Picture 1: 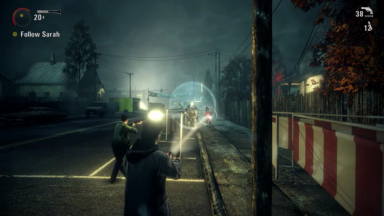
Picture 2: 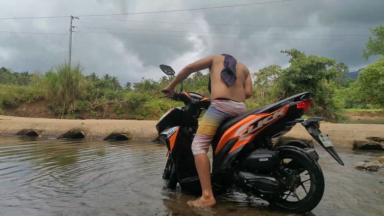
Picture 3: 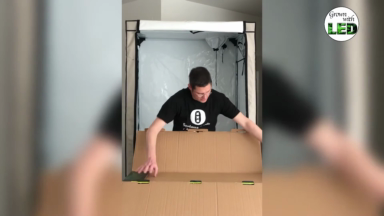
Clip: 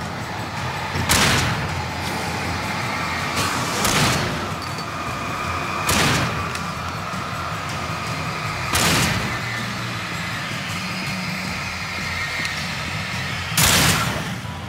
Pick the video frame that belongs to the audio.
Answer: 1